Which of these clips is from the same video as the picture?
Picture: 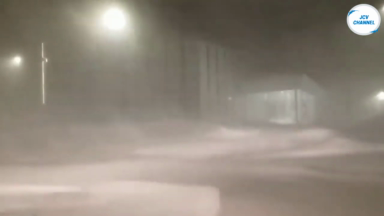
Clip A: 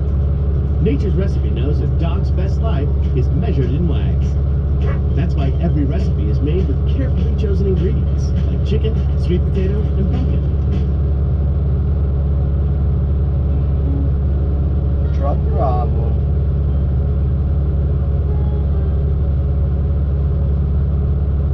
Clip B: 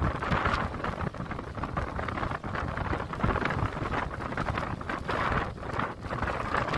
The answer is B